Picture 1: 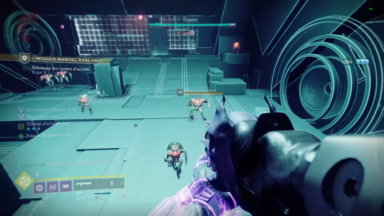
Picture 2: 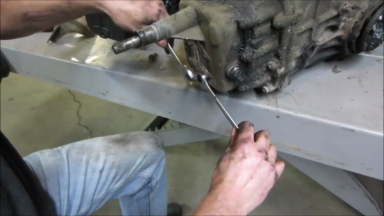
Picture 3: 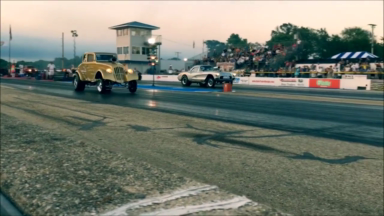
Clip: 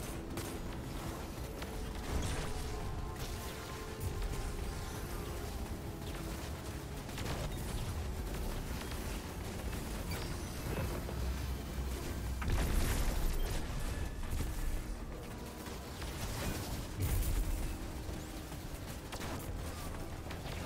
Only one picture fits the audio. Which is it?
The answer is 1